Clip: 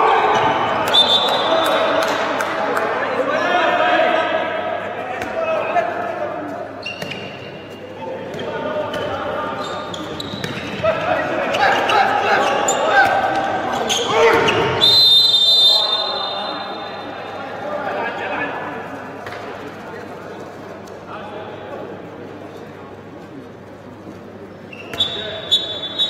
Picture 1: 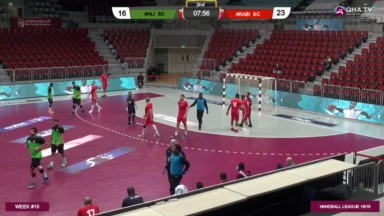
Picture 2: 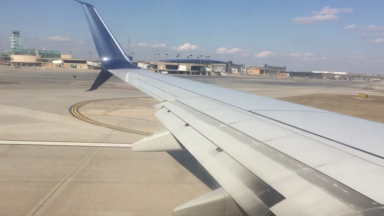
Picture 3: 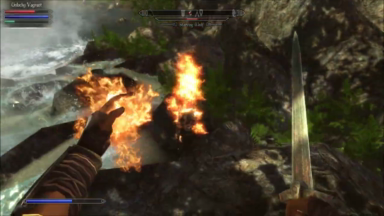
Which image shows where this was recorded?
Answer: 1